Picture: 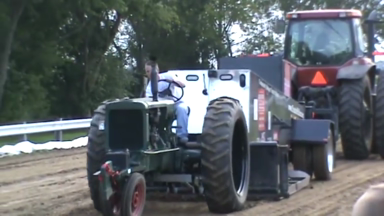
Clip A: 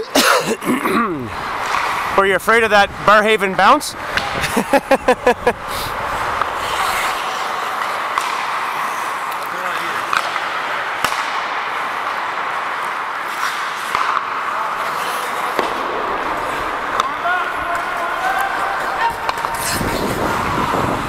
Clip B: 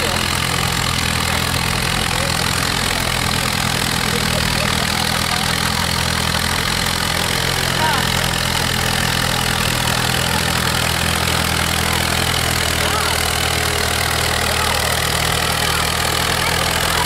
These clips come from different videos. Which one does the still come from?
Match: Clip B